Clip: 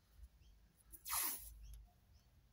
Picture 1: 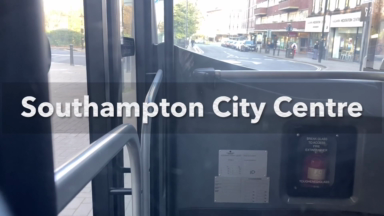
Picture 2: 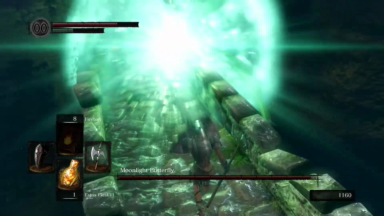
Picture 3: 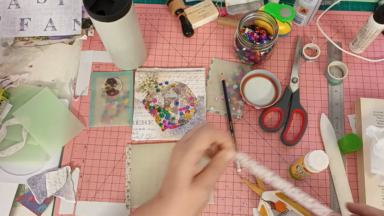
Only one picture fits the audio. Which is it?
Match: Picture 3